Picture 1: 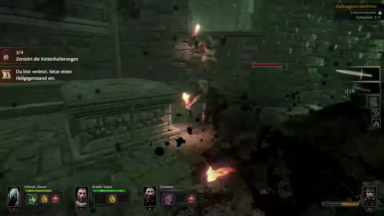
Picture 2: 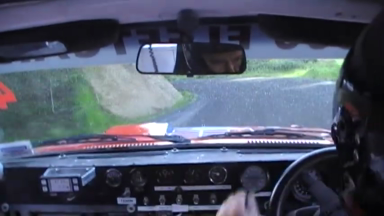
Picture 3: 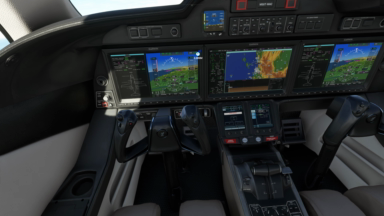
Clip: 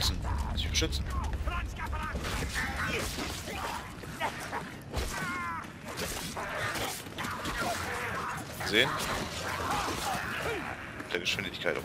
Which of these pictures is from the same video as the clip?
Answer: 1